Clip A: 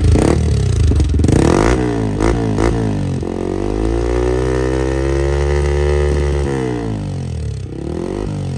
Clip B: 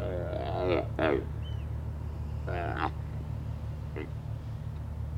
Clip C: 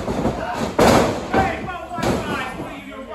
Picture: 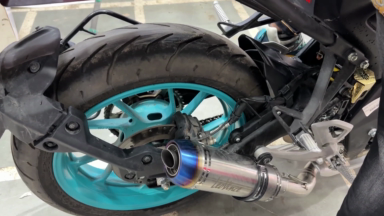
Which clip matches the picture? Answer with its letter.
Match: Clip A